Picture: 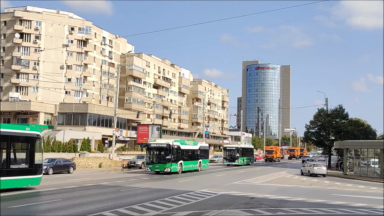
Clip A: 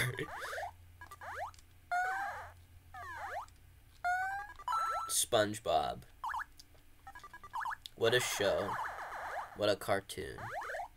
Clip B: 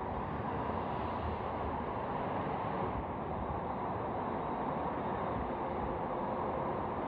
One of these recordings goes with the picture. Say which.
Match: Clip B